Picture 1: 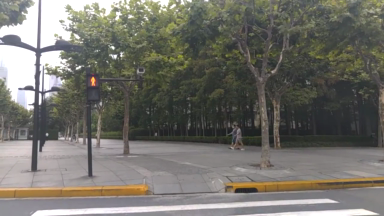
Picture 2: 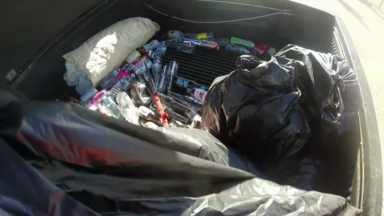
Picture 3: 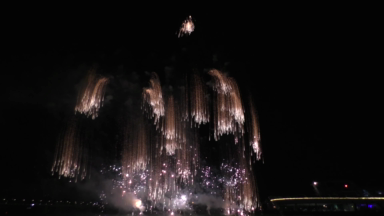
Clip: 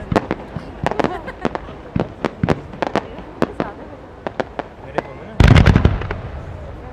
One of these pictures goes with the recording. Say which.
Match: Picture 3